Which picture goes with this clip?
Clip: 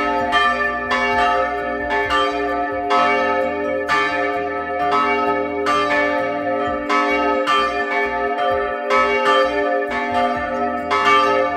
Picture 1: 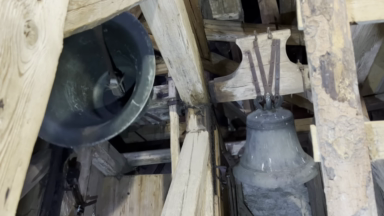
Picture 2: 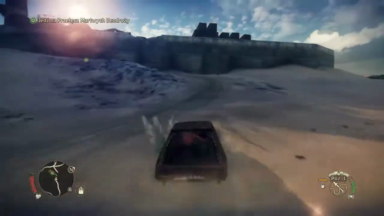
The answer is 1